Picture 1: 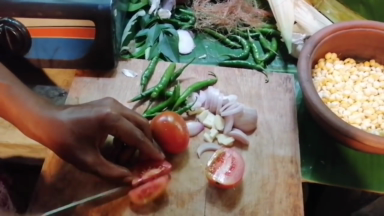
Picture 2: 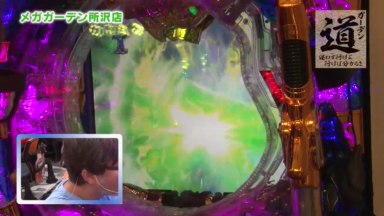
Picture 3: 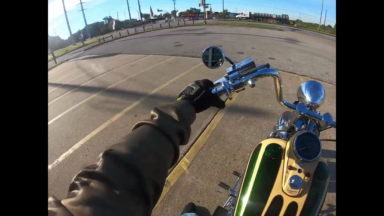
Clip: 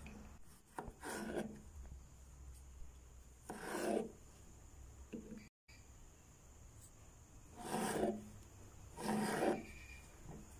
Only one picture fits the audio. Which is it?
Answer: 1